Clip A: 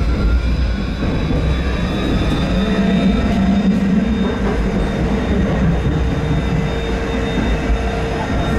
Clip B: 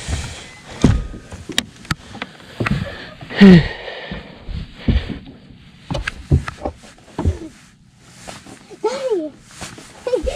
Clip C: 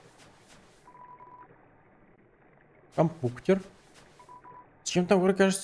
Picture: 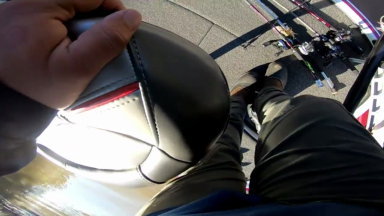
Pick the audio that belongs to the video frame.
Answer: B